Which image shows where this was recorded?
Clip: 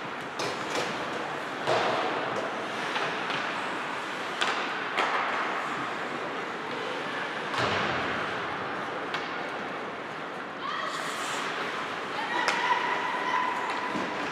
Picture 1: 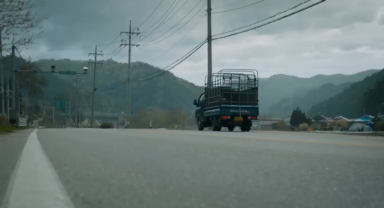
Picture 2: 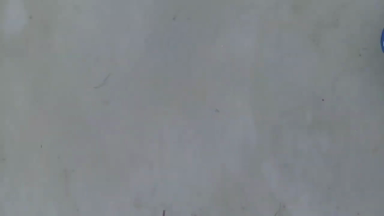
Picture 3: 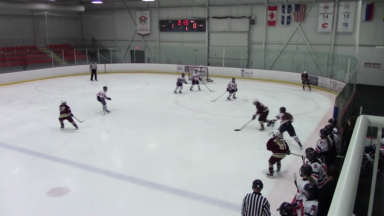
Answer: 3